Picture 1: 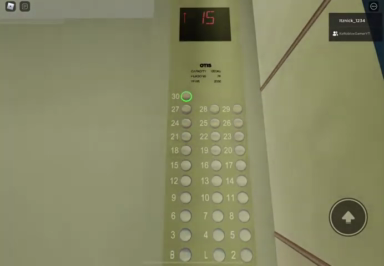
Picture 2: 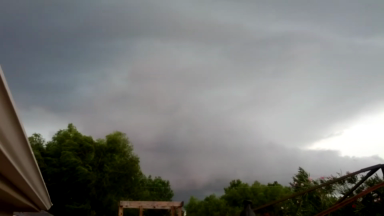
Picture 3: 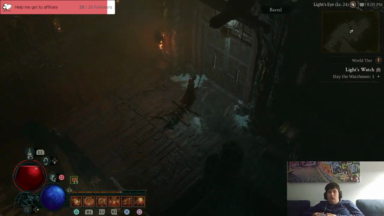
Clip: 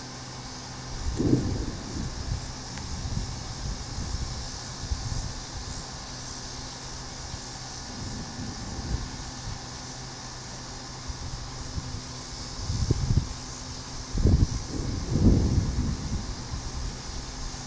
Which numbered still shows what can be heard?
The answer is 2